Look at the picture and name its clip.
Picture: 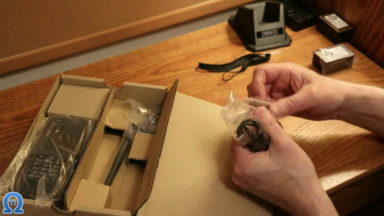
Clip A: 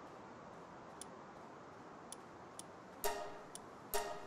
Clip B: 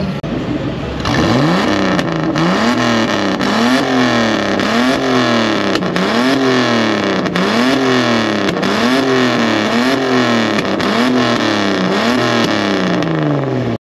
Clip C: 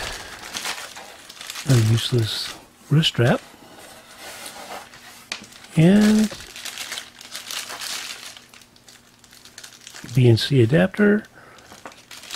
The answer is C